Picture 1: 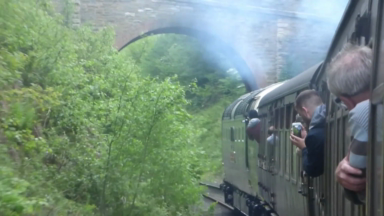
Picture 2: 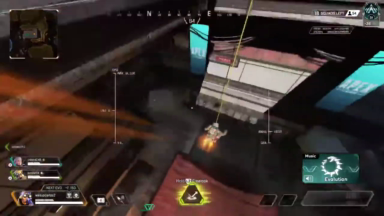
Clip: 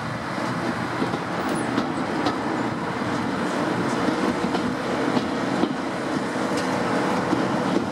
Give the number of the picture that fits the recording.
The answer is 1